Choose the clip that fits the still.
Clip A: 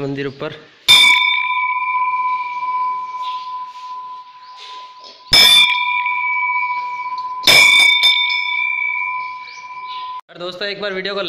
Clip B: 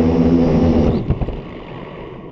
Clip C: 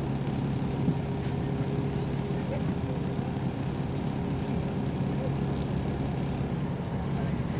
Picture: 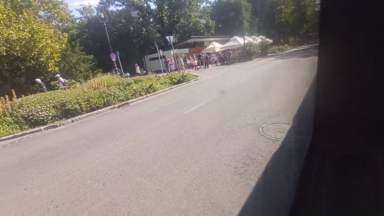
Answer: C